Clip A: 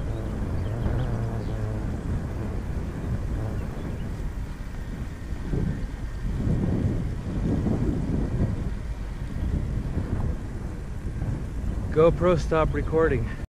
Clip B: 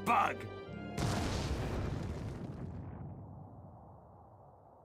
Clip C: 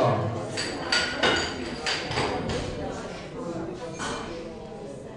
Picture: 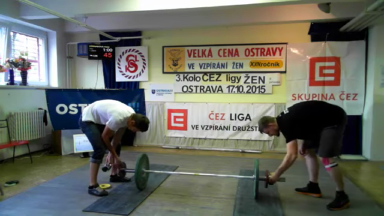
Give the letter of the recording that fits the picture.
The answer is C